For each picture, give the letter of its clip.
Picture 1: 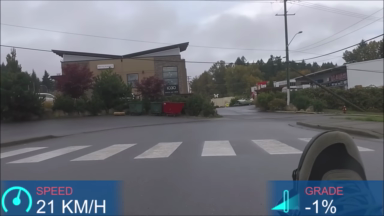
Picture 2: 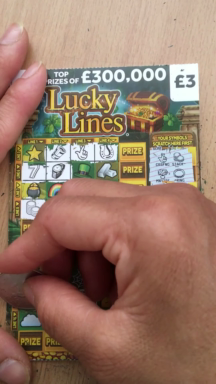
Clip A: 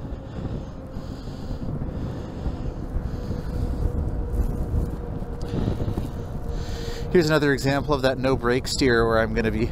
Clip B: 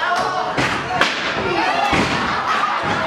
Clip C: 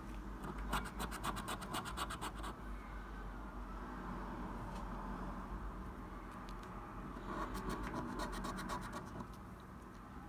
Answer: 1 A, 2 C